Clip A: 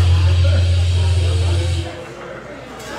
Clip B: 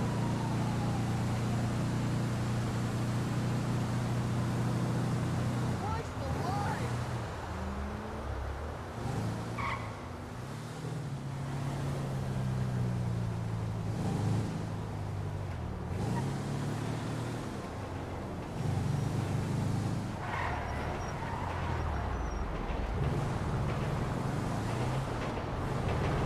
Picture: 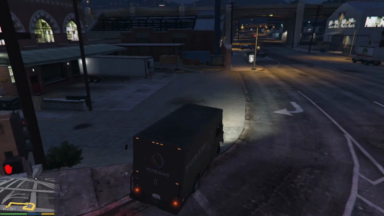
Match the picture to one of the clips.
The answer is B